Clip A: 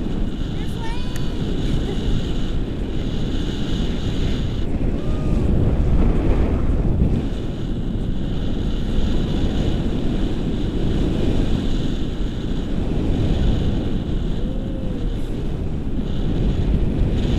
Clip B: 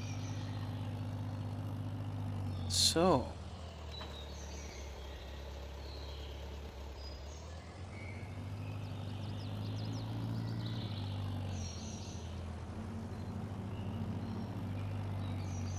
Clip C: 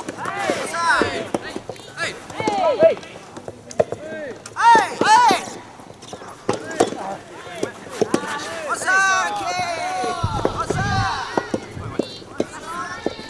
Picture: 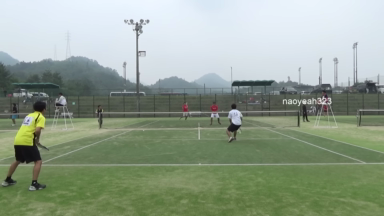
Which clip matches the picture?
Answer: C